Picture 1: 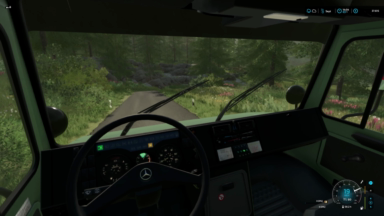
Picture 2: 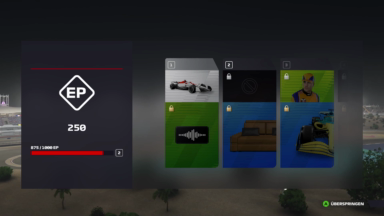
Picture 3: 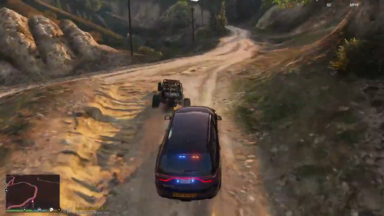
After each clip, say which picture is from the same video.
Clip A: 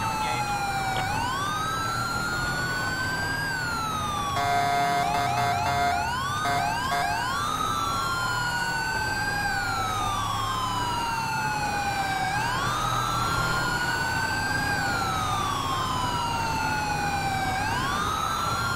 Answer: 3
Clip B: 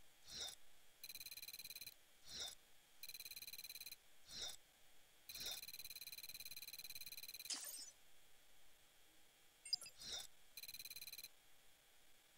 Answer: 2